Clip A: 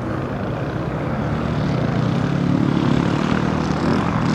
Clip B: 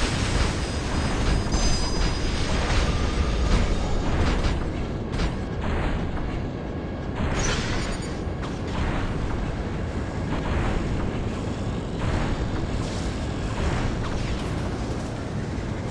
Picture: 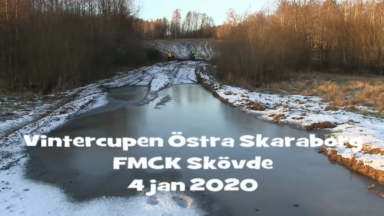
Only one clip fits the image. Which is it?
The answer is A